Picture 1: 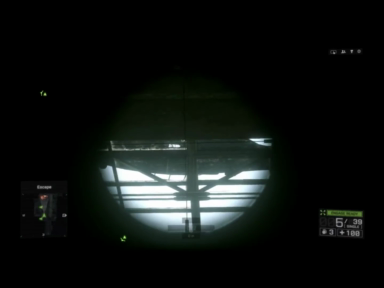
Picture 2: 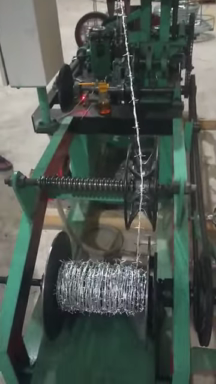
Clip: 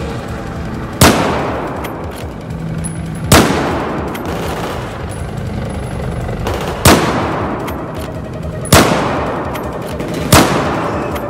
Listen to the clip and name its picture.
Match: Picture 1